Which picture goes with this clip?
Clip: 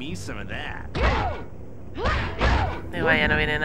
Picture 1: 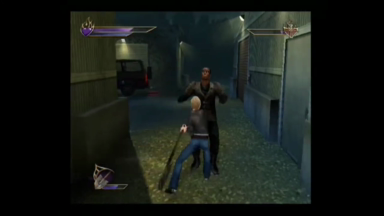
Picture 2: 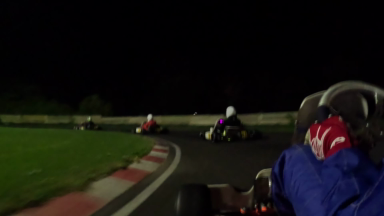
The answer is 1